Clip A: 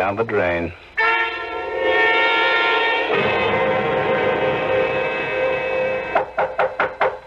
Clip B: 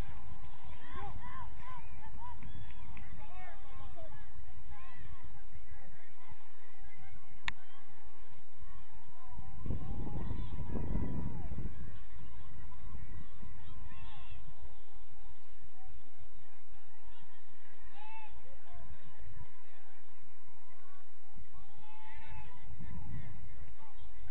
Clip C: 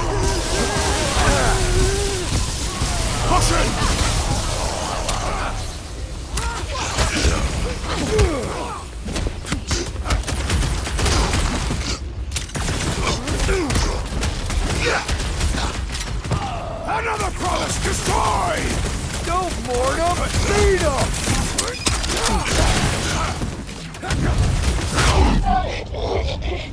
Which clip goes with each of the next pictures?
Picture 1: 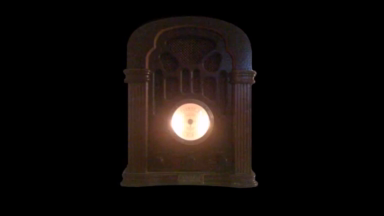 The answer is A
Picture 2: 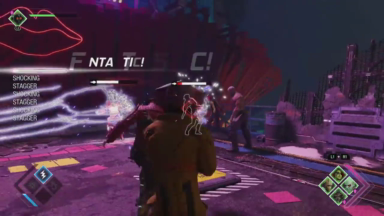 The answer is C